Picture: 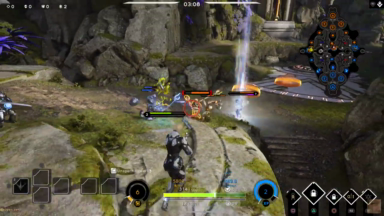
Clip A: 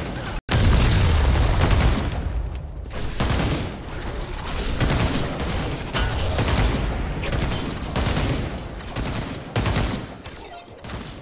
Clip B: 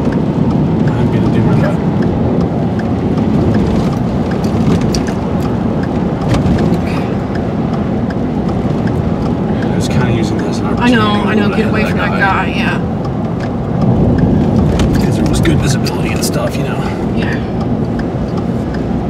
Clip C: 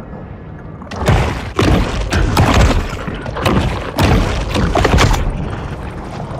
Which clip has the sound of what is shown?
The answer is A